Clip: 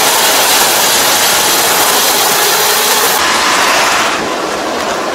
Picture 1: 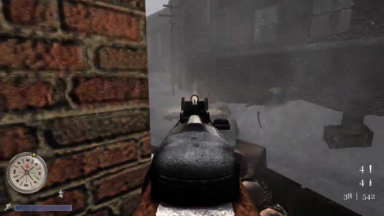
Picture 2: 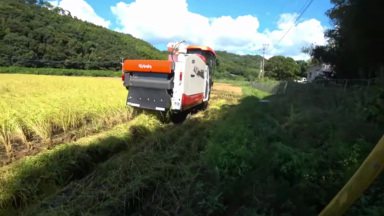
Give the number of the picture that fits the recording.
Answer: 2